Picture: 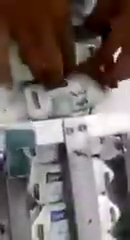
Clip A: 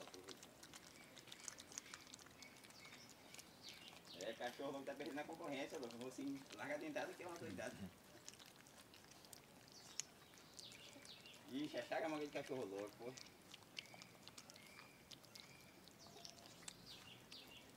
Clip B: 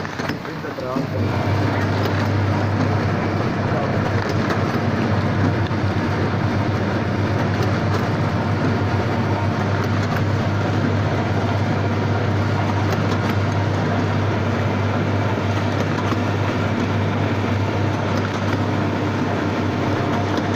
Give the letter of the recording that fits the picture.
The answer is B